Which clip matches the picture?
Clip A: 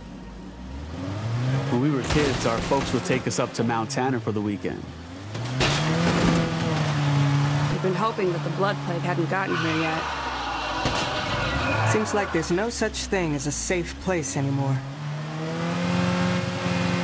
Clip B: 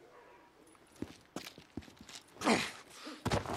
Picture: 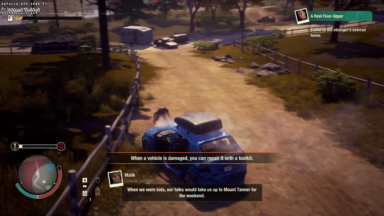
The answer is A